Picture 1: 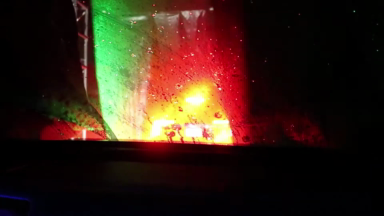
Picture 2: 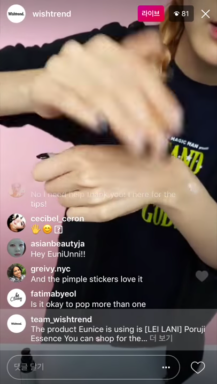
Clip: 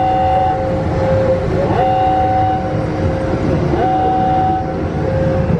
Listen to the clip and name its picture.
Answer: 1